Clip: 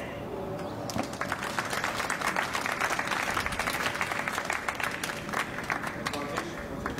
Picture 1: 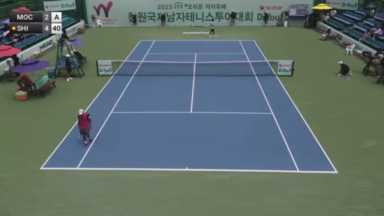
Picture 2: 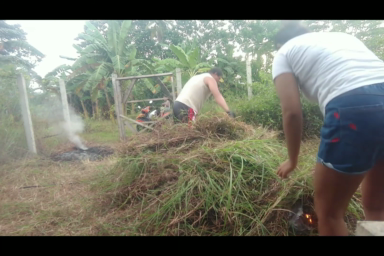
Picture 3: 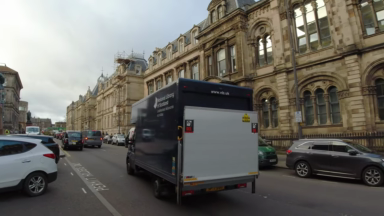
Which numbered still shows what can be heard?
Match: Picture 1